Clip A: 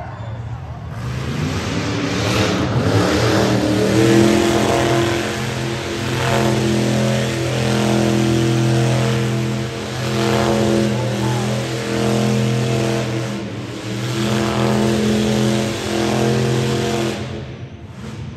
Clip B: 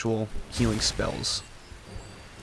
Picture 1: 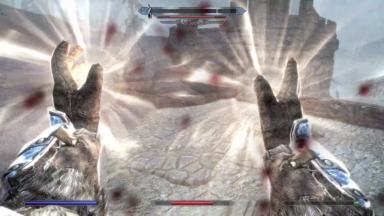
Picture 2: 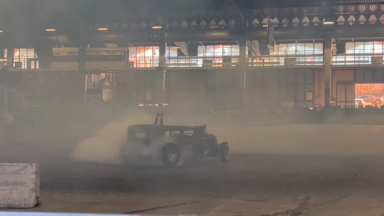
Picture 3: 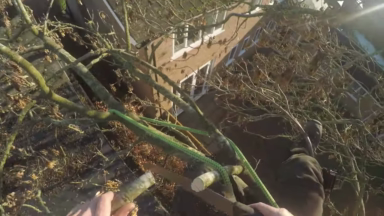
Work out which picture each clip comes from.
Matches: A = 2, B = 1